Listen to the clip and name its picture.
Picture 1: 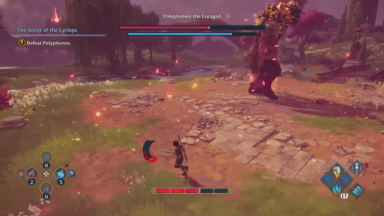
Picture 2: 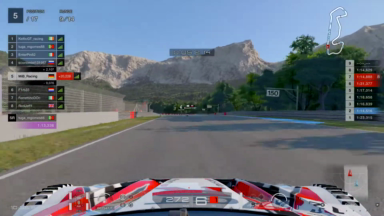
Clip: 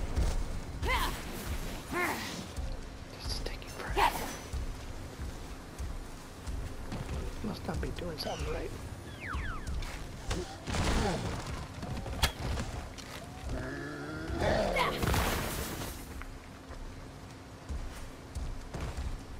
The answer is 1